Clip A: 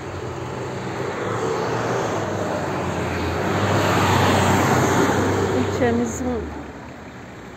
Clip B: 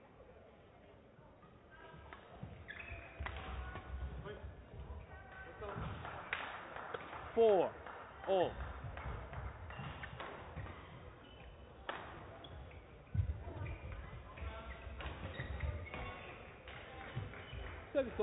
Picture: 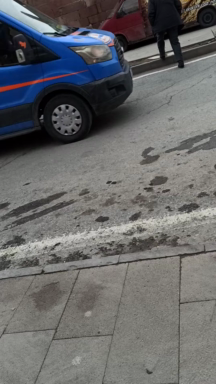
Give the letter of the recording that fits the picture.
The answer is A